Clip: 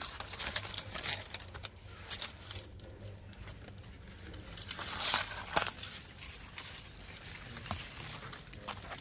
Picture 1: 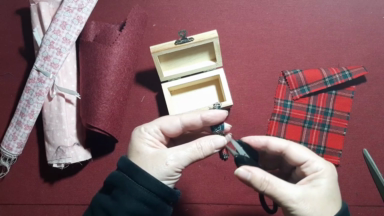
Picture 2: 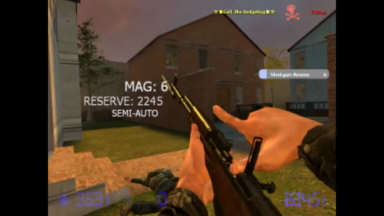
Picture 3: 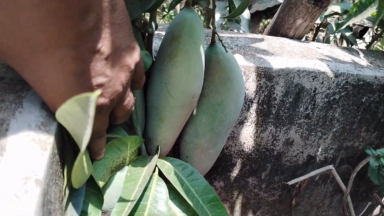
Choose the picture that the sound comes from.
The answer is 3